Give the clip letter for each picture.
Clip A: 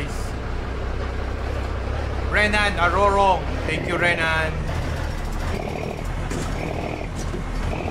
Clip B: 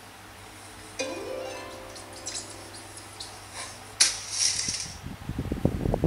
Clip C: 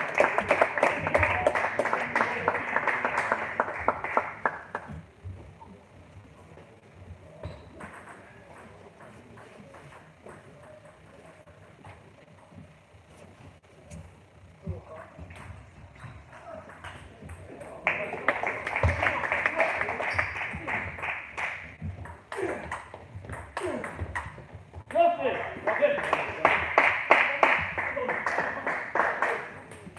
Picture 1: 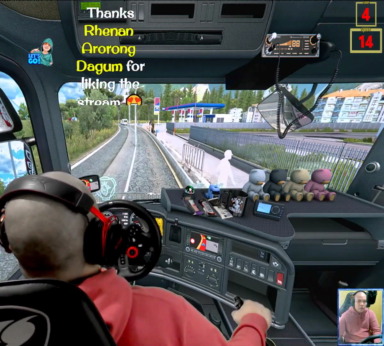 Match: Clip A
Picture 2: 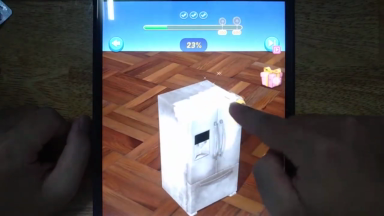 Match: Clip B